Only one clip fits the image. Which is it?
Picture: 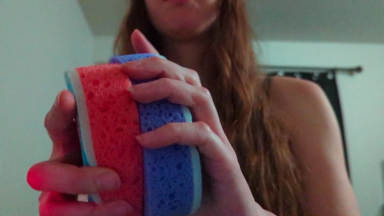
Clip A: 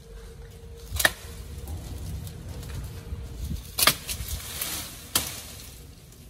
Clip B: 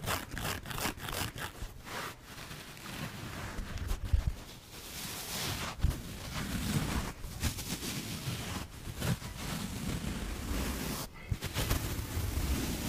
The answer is B